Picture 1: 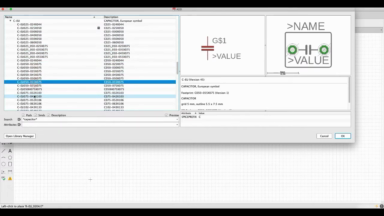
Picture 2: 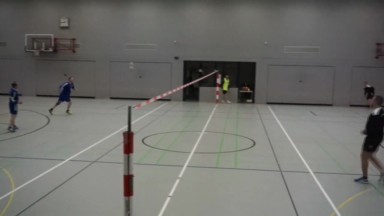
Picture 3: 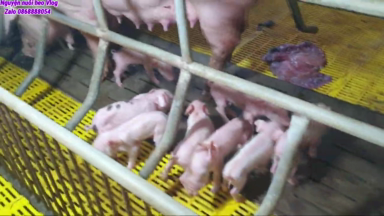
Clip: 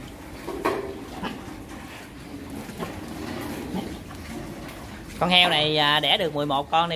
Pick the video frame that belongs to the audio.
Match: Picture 3